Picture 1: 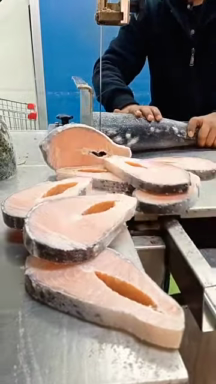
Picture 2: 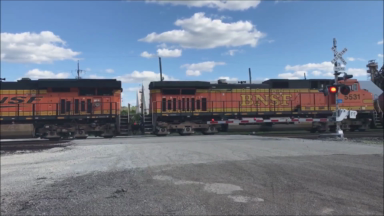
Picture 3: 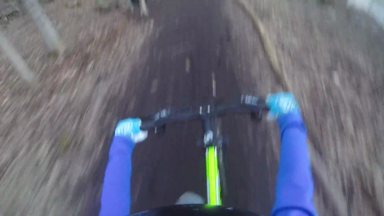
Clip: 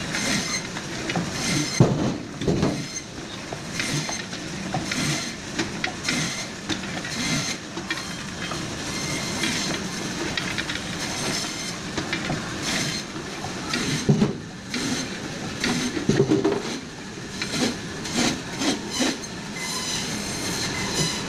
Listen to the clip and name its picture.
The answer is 1